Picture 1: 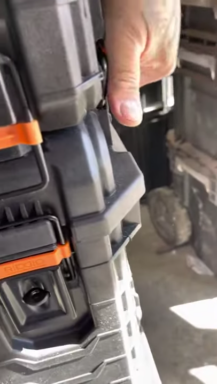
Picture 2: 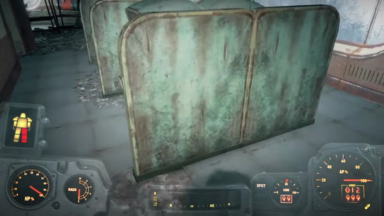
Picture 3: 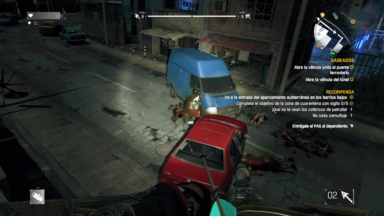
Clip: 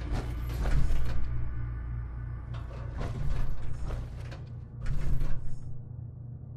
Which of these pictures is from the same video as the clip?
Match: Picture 2